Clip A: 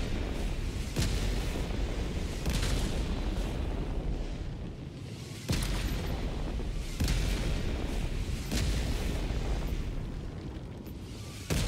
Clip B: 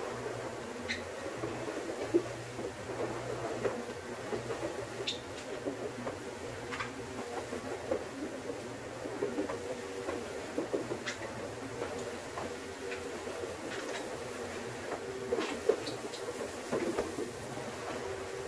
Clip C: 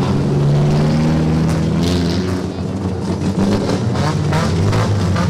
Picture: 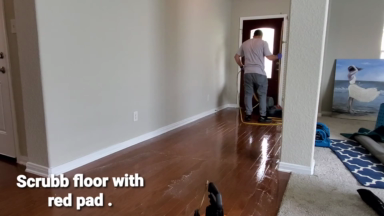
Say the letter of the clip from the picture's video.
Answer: B